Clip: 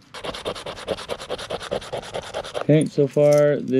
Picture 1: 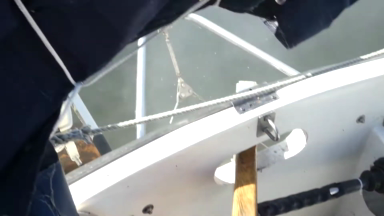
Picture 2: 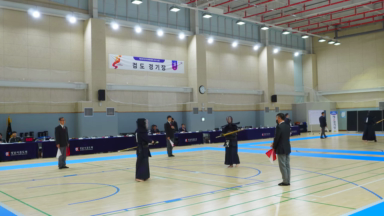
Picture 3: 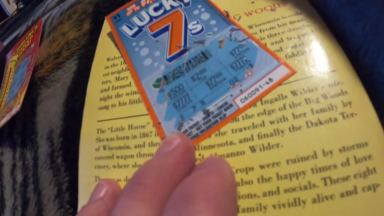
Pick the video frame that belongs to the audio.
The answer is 3